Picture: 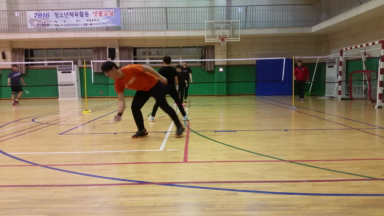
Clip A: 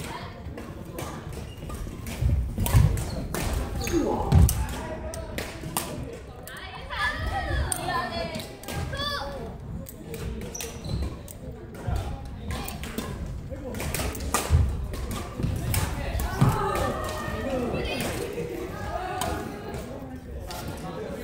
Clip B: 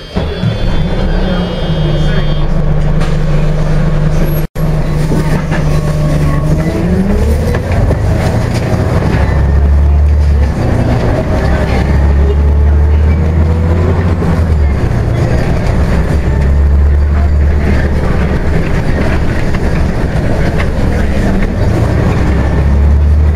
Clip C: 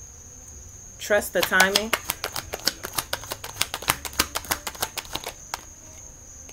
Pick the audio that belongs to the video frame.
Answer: A